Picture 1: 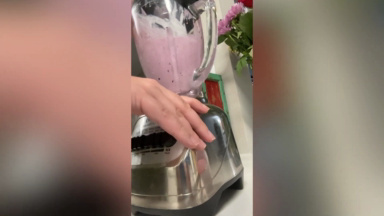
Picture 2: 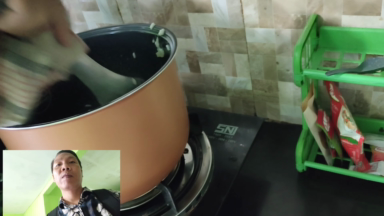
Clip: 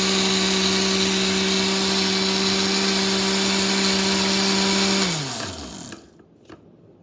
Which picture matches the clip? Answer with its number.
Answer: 1